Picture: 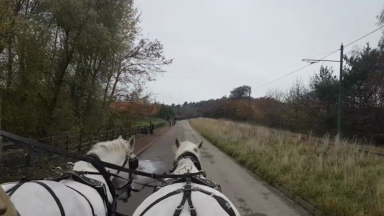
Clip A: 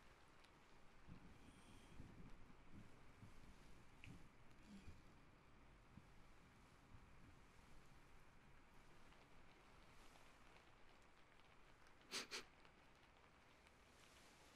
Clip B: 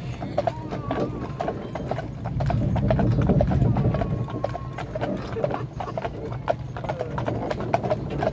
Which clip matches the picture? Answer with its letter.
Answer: B